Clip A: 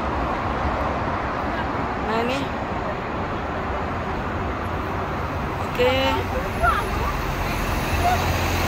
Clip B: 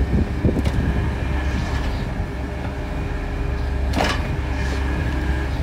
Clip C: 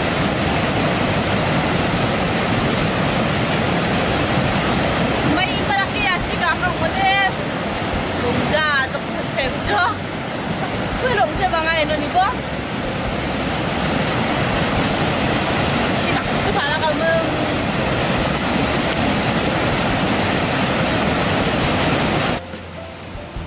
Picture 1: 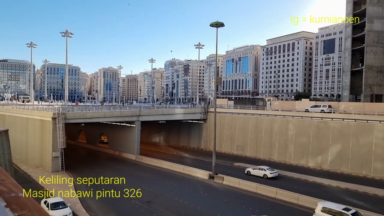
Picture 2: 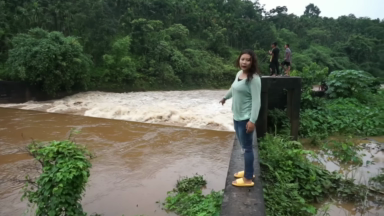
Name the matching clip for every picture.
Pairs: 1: A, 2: C